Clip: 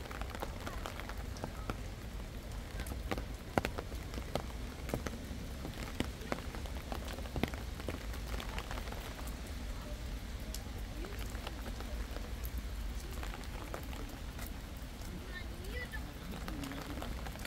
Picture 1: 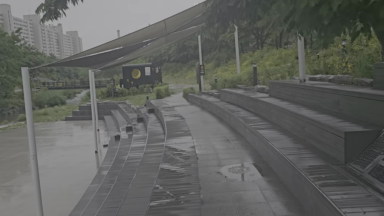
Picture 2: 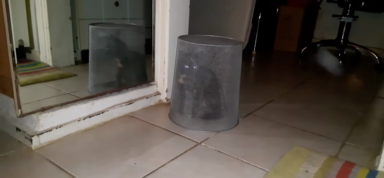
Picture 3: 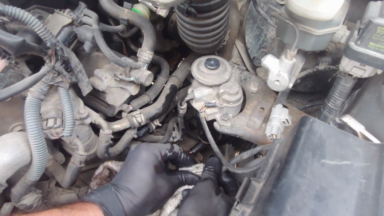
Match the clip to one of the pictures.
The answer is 1